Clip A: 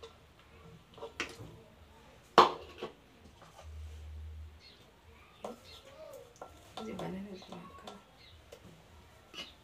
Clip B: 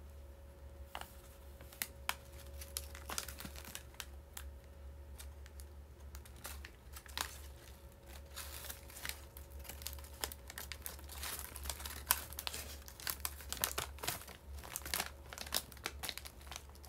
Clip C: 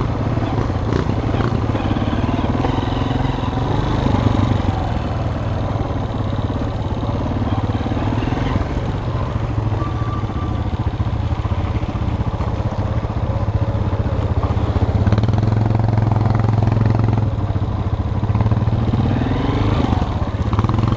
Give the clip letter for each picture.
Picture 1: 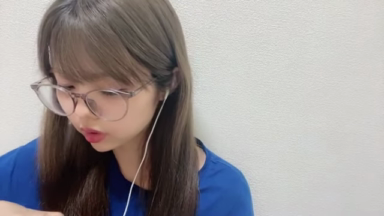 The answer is B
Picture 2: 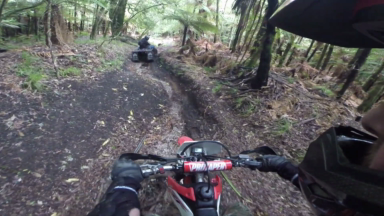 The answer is C